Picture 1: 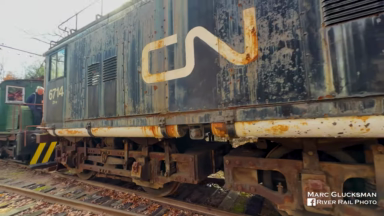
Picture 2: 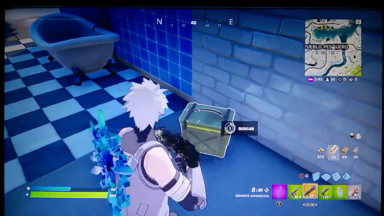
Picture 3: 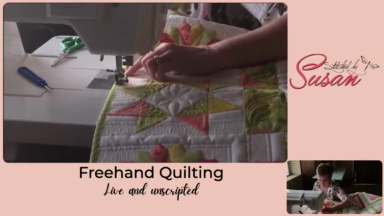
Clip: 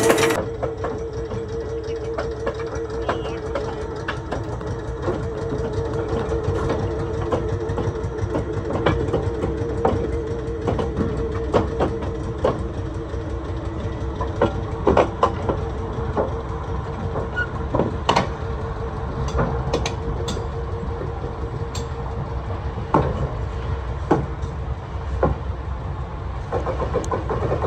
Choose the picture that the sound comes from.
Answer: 1